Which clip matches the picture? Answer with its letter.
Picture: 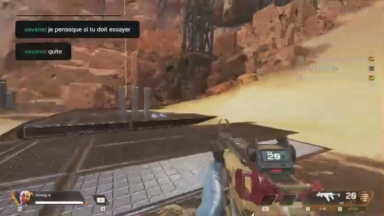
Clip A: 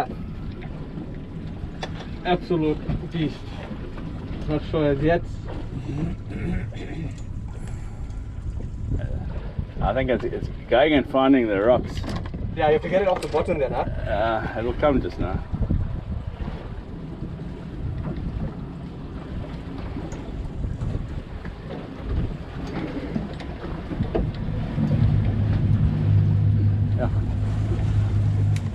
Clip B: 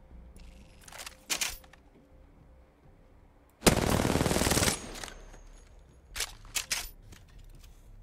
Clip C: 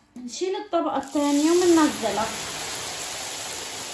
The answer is B